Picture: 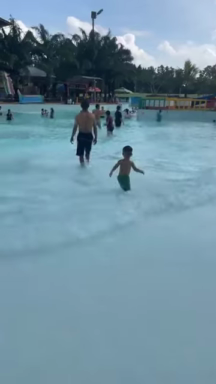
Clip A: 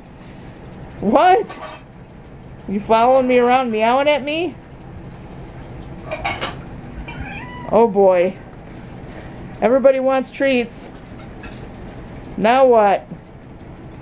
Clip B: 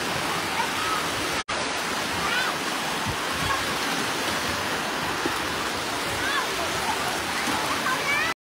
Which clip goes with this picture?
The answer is B